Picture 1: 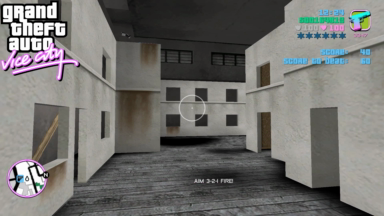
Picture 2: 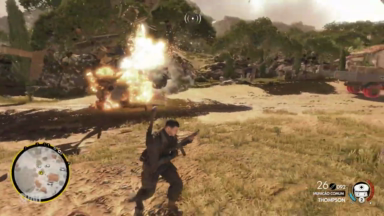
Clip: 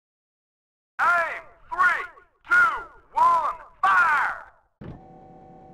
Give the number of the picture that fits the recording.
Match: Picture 1